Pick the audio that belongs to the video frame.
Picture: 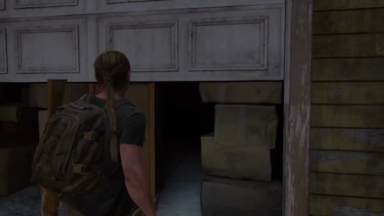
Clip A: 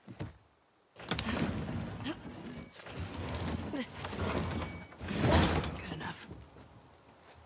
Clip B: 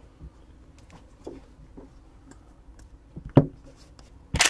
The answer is A